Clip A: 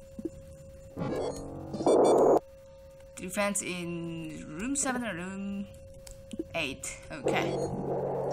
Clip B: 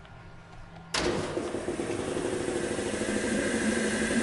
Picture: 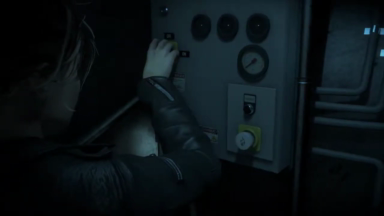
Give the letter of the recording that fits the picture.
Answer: B